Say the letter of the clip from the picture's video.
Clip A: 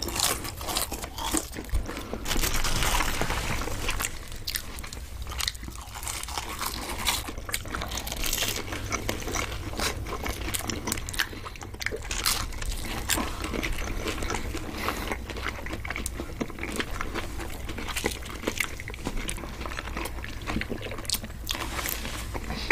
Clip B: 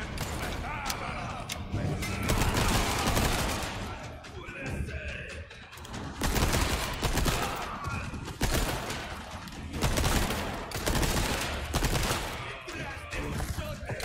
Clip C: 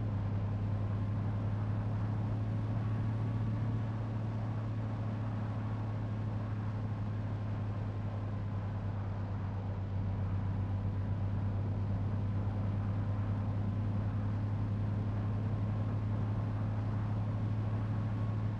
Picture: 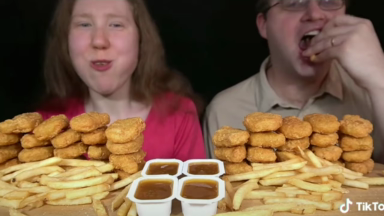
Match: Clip A